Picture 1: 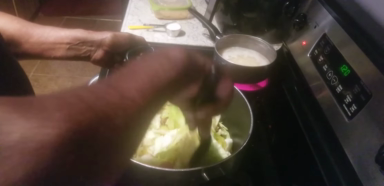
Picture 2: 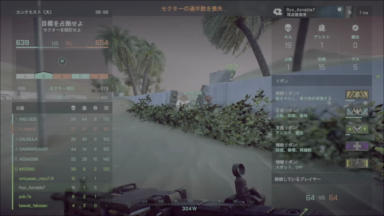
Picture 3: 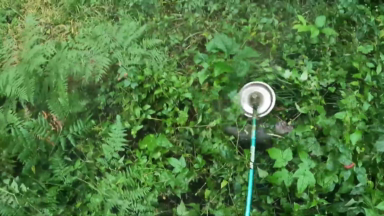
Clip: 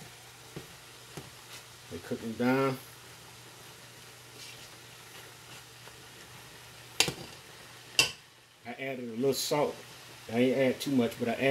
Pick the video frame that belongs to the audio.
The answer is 1